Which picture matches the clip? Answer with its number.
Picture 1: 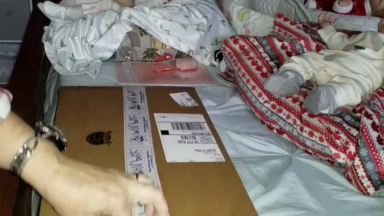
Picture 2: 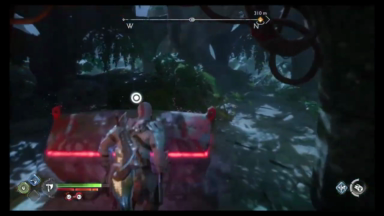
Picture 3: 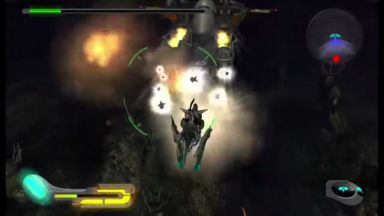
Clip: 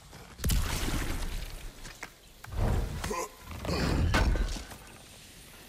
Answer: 2